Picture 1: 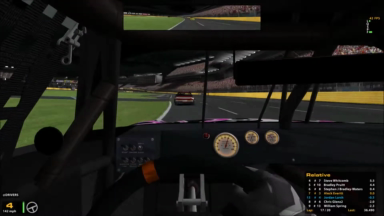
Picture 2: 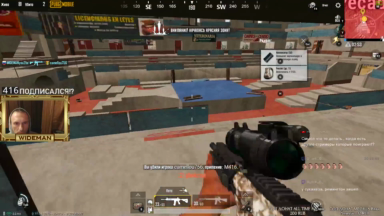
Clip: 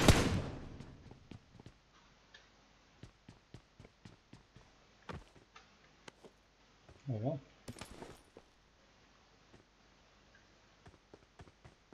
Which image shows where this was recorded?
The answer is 2